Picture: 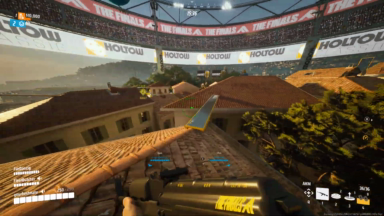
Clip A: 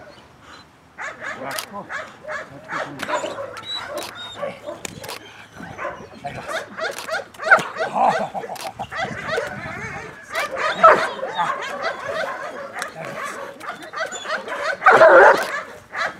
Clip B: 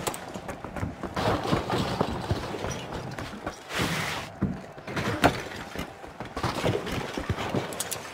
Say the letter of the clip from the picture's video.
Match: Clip B